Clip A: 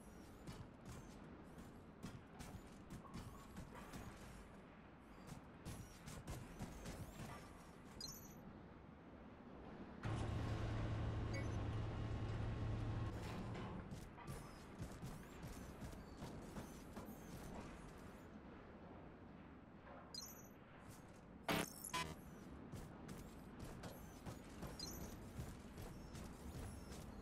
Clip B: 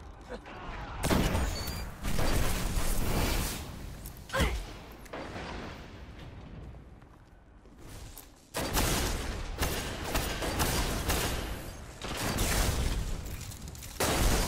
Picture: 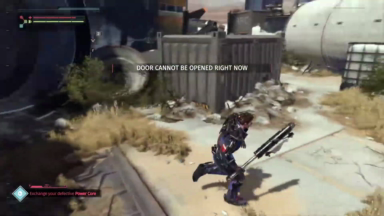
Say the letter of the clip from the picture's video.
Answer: A